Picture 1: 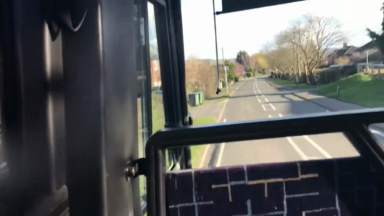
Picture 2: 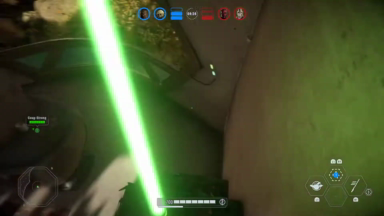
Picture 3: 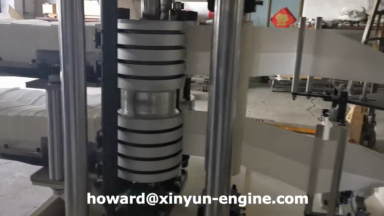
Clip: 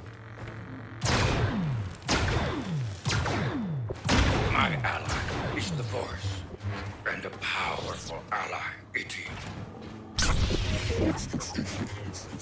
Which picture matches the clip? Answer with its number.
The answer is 2